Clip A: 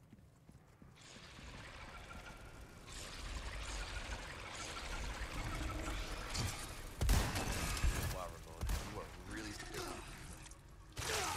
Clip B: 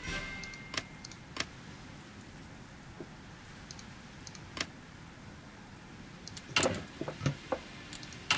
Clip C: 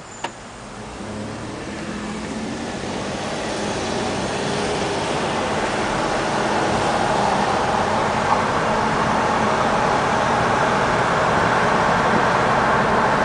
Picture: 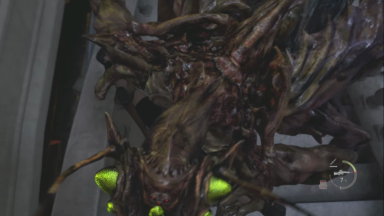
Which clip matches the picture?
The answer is A